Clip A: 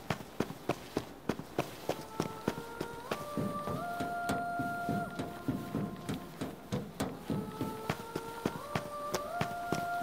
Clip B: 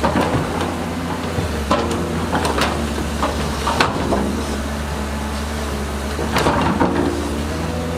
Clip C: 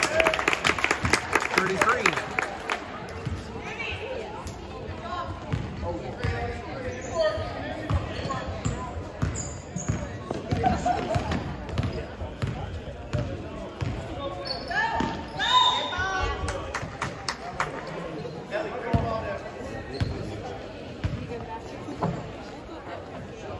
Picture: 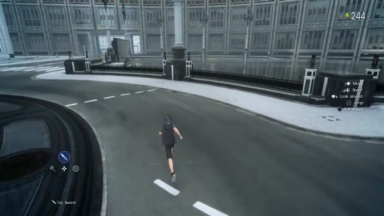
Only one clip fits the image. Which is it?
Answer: A